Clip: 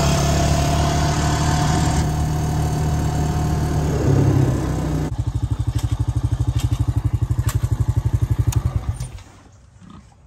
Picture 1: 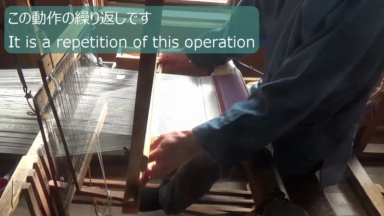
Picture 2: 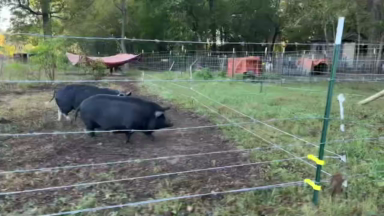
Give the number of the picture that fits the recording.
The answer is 2